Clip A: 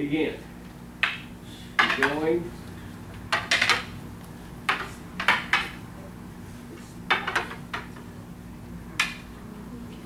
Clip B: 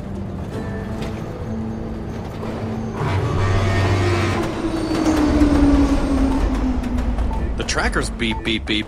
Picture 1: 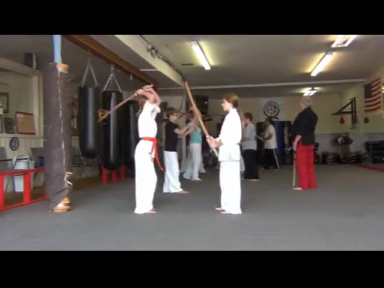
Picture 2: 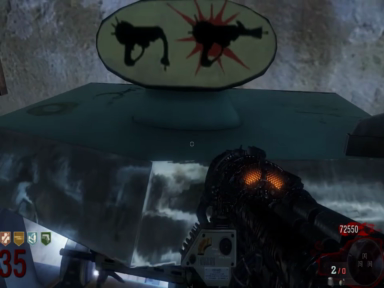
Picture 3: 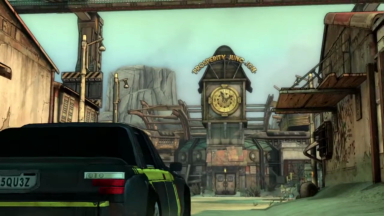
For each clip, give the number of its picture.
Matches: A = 1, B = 3